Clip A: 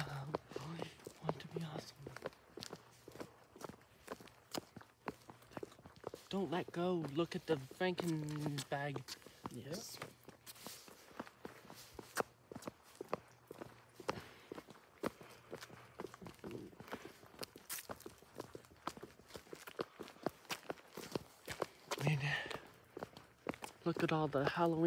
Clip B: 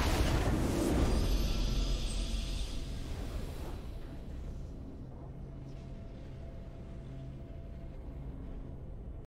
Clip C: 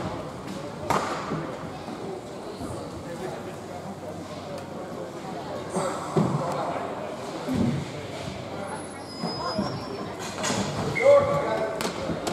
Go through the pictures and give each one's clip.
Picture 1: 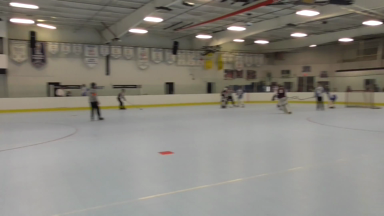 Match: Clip C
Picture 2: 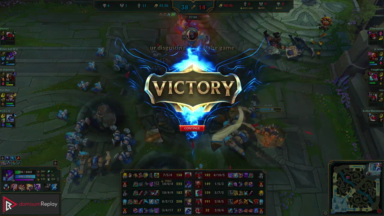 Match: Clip B